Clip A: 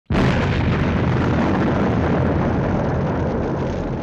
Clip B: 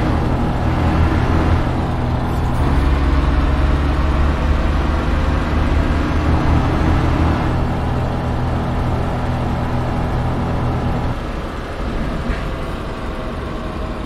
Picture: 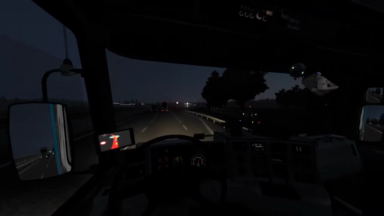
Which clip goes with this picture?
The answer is B